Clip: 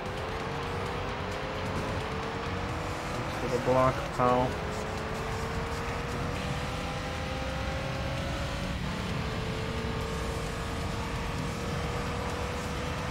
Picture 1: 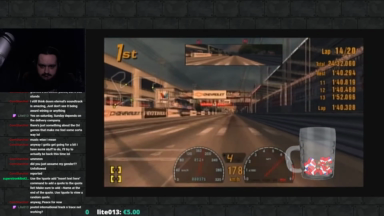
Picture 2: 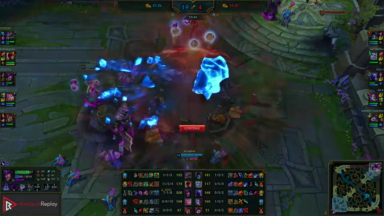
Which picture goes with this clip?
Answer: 1